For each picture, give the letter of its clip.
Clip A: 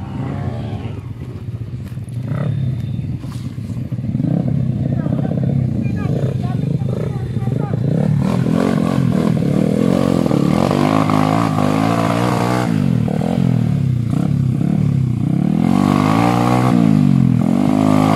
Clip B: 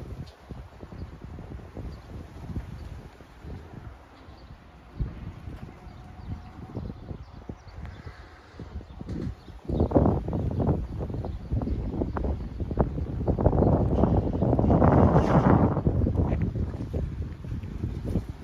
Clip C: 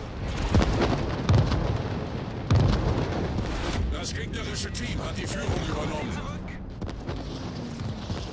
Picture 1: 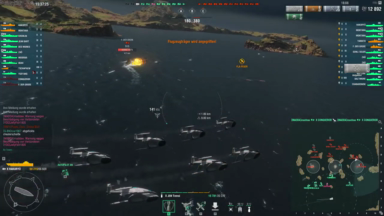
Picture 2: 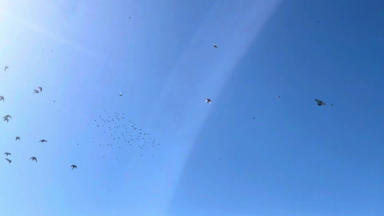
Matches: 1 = C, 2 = B